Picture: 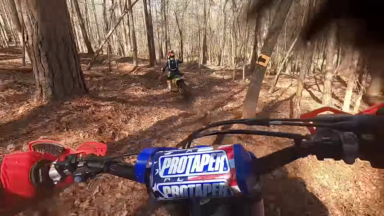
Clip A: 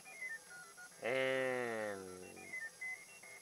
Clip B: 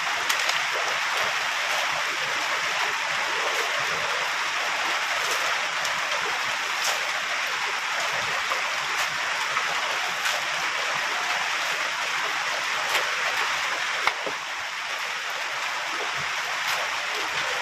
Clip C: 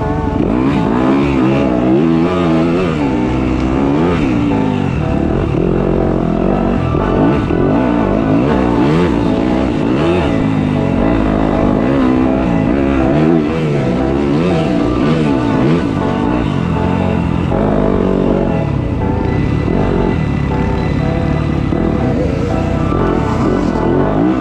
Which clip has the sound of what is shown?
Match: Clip C